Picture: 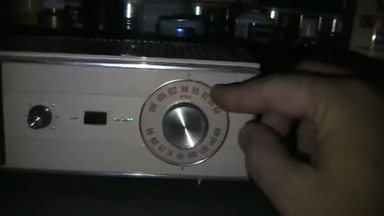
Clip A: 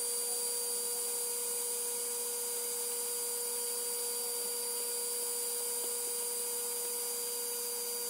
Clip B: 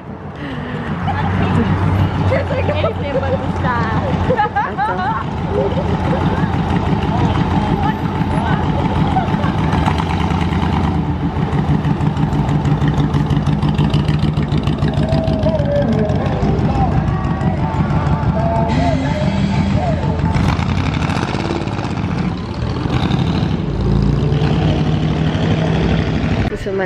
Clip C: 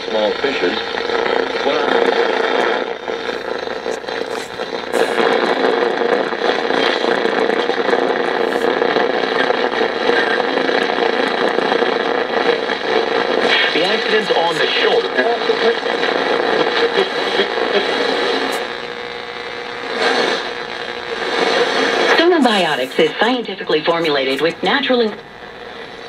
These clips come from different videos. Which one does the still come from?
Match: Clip C